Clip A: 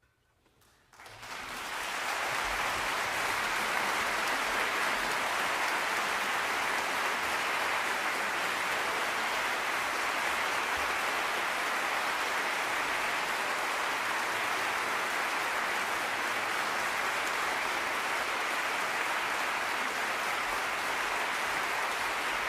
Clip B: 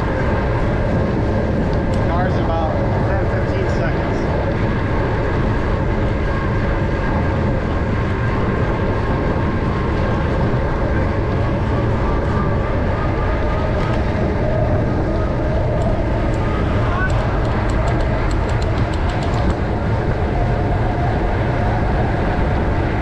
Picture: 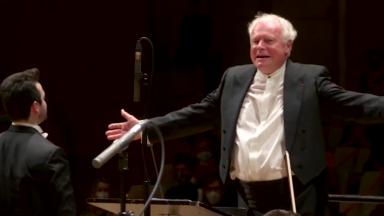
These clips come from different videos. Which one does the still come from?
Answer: A